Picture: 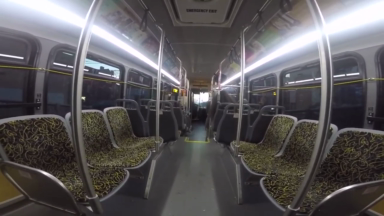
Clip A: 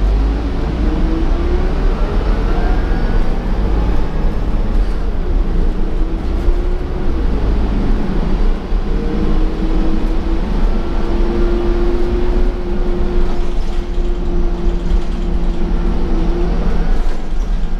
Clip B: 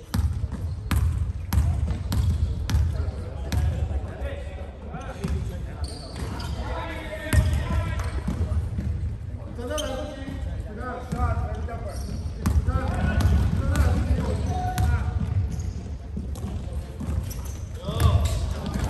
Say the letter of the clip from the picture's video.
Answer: A